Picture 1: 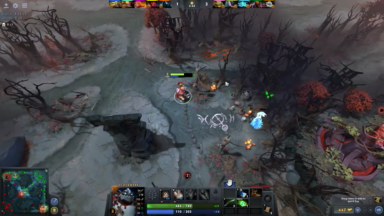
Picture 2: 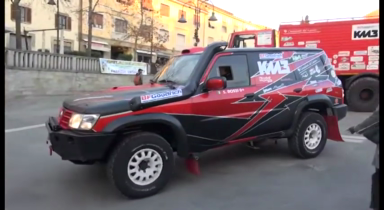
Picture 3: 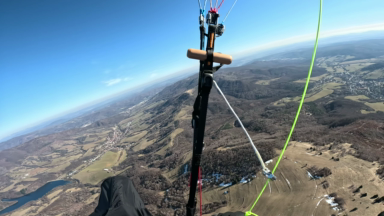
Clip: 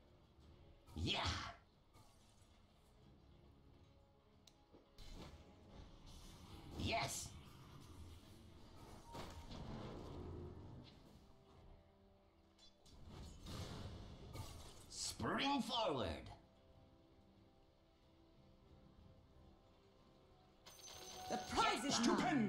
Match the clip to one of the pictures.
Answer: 1